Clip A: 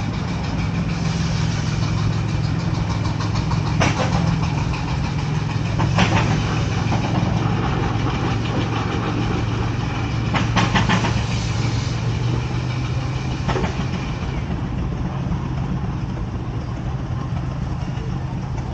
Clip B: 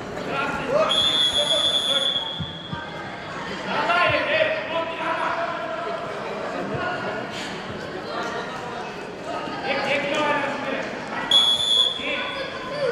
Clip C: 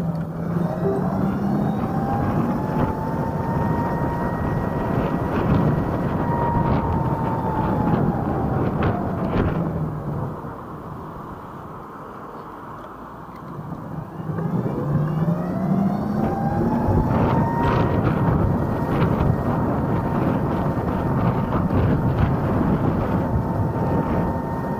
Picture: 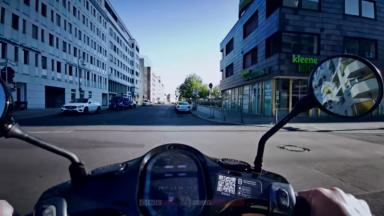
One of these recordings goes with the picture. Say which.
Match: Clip C